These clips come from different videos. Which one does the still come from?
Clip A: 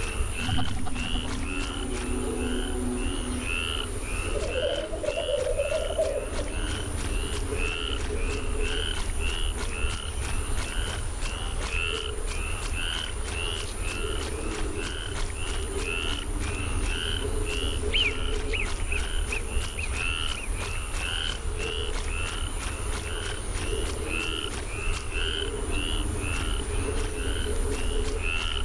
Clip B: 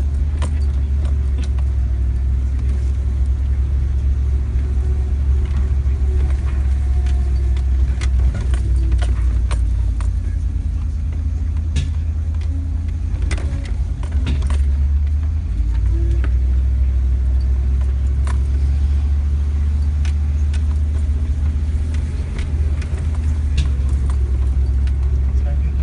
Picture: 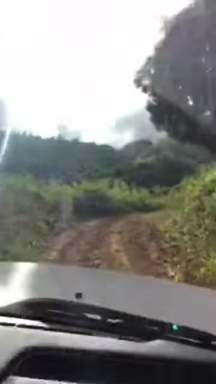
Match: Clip B